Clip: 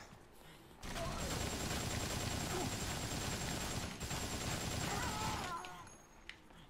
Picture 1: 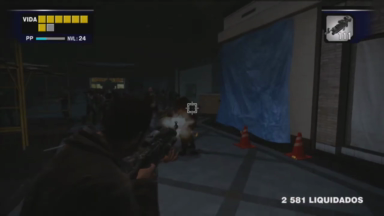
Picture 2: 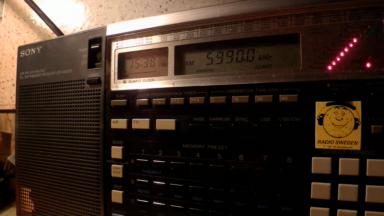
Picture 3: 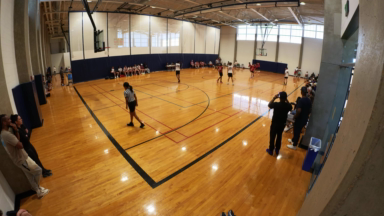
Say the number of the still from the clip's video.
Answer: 1